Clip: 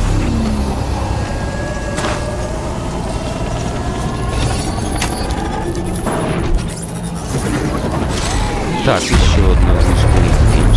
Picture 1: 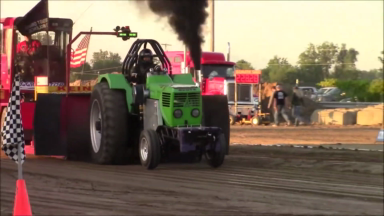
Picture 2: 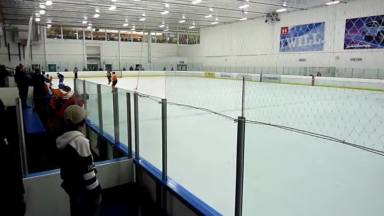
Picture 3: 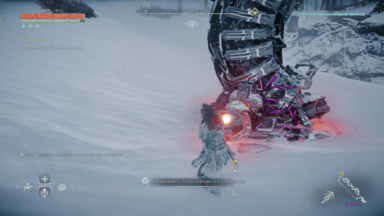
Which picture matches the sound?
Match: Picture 3